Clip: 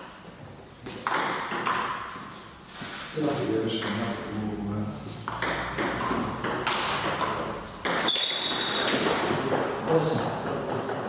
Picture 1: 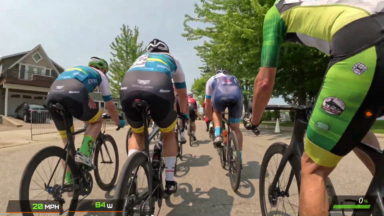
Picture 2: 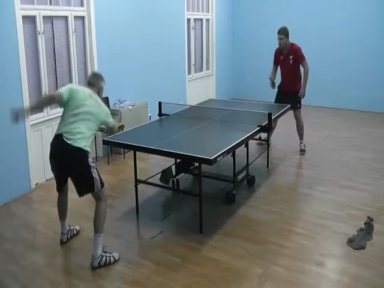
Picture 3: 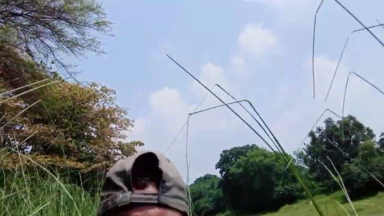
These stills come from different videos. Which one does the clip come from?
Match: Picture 2